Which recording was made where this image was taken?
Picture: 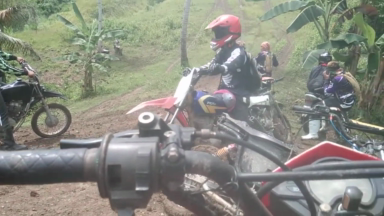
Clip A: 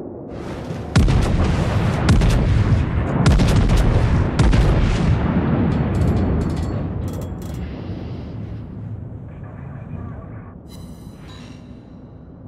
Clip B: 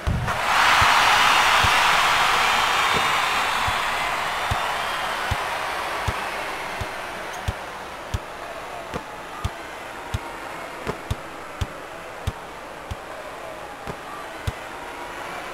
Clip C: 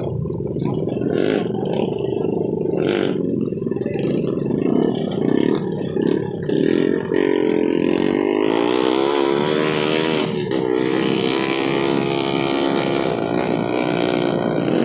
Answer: C